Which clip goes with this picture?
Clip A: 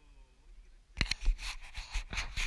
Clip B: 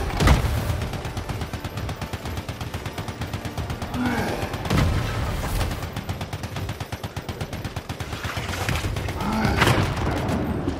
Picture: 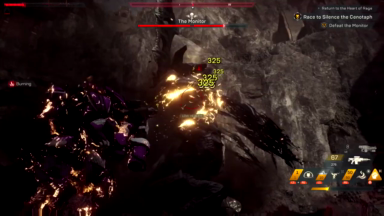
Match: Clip B